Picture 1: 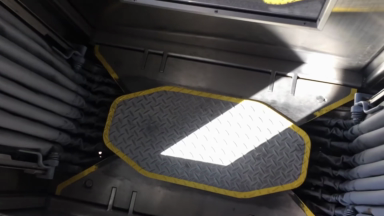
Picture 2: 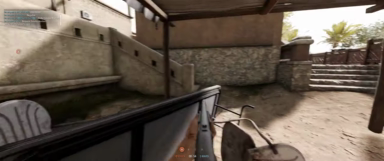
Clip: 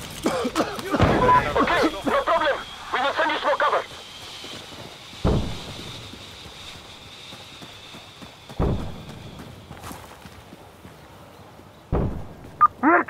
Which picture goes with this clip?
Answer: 2